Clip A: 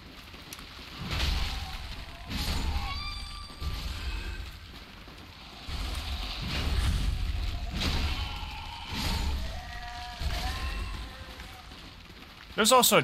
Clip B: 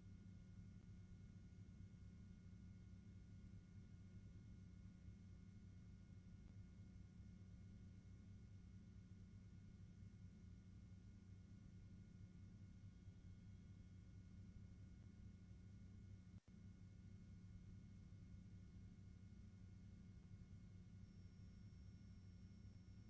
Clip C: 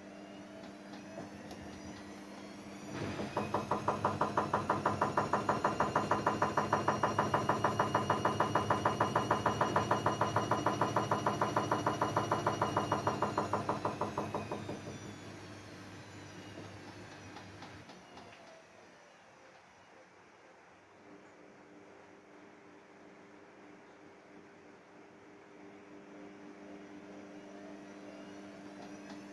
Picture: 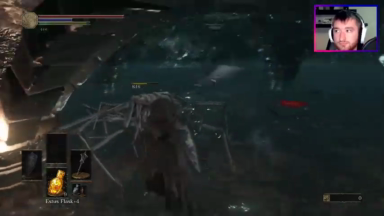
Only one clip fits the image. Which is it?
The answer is A